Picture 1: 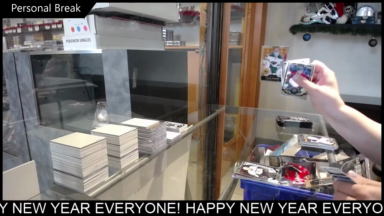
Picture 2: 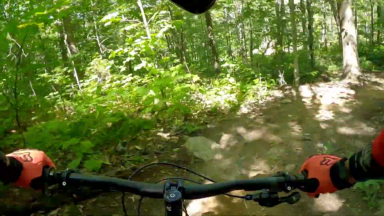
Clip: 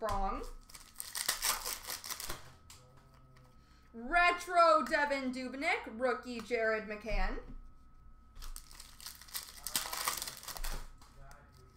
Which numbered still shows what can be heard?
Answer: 1